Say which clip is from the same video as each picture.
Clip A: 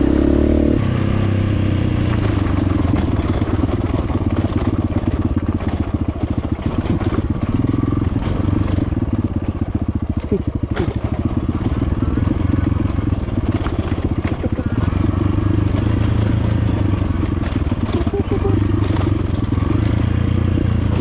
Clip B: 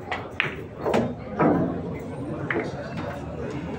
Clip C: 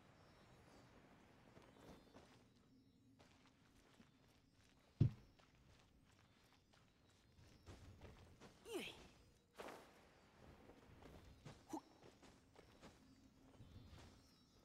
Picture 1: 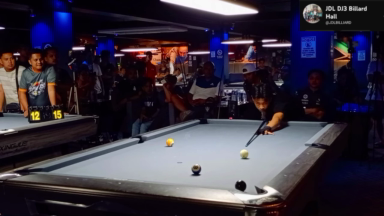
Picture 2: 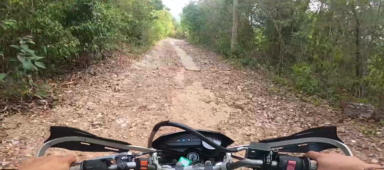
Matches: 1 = B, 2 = A